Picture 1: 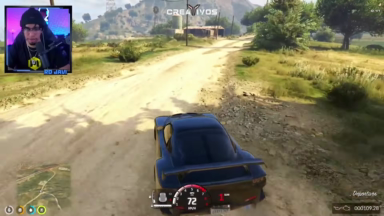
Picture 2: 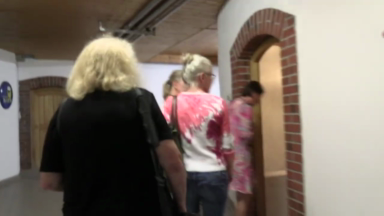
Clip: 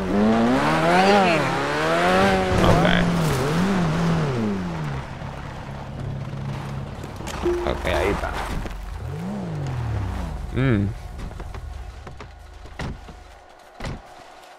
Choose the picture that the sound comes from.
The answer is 1